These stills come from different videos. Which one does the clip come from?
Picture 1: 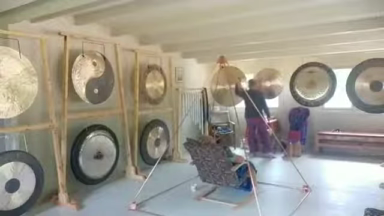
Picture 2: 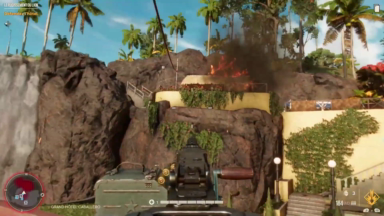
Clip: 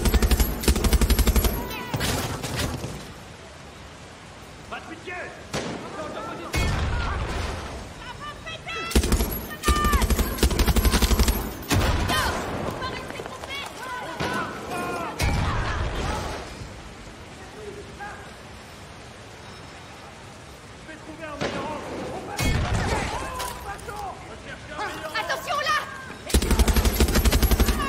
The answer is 2